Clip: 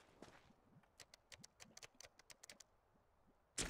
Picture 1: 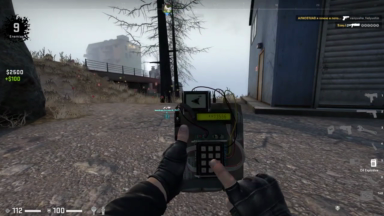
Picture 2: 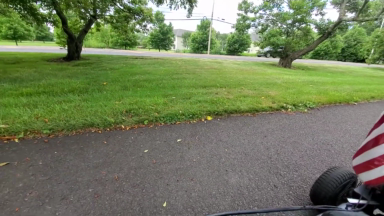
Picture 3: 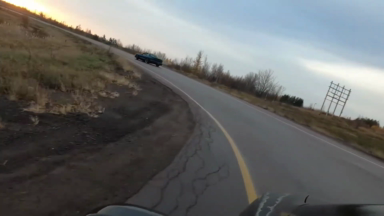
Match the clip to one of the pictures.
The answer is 1